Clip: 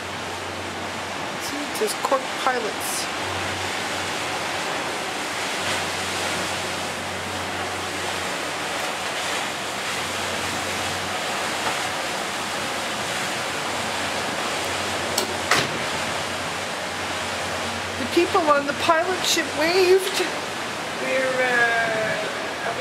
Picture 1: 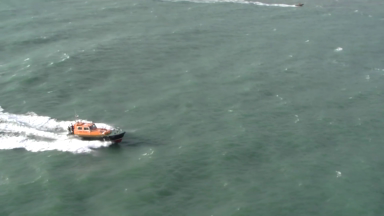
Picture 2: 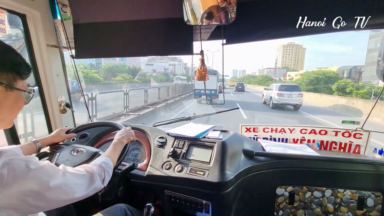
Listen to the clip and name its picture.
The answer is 1